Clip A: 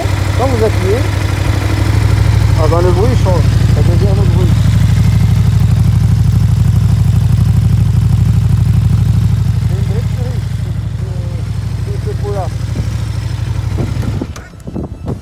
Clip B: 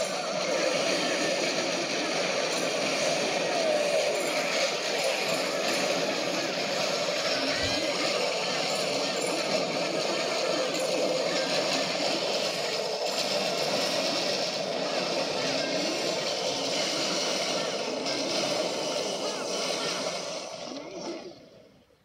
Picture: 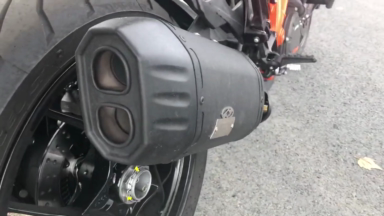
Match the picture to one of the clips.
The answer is A